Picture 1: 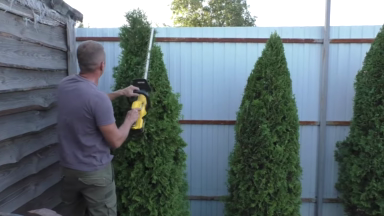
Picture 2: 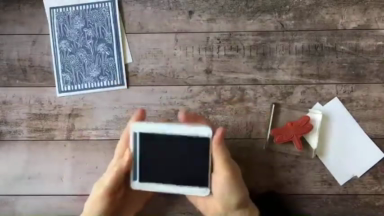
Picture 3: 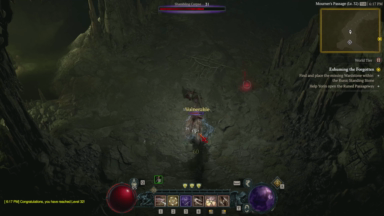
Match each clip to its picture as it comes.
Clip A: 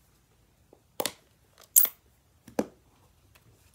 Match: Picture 2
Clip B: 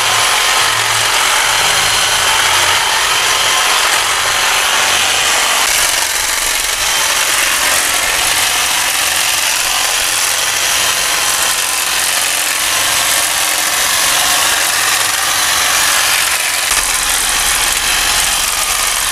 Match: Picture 1